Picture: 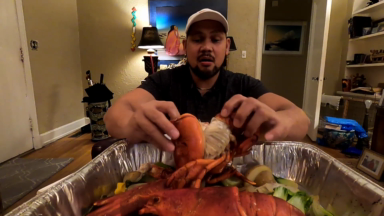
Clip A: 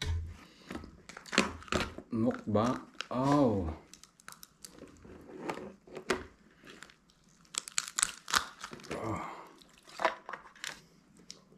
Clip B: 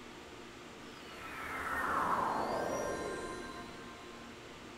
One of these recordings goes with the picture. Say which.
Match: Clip A